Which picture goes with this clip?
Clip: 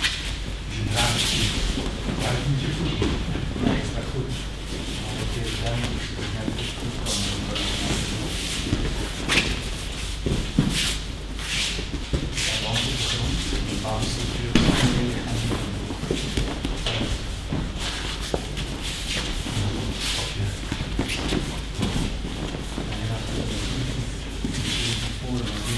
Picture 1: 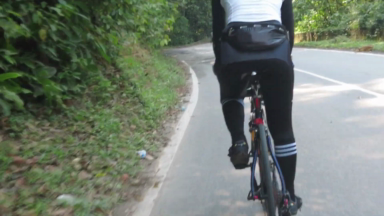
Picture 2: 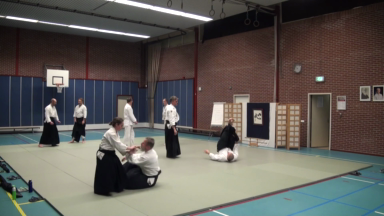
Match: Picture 2